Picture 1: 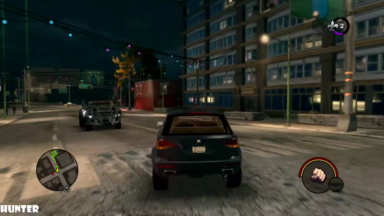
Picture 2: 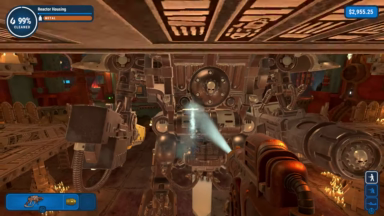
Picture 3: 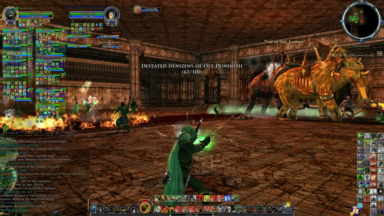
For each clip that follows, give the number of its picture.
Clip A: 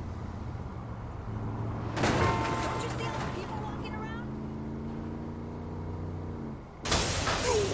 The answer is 1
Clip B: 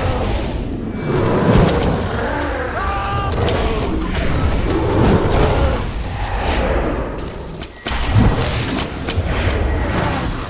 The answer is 3